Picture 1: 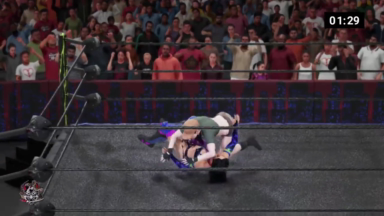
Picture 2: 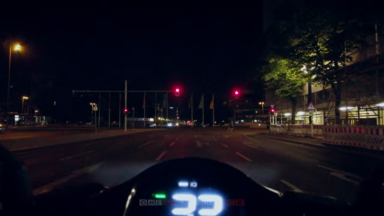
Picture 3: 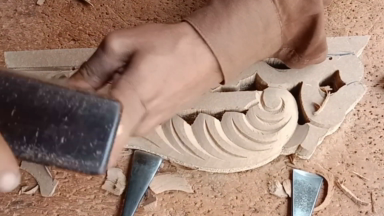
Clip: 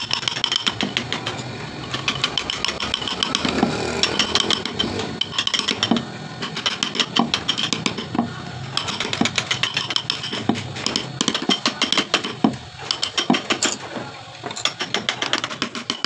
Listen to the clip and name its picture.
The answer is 3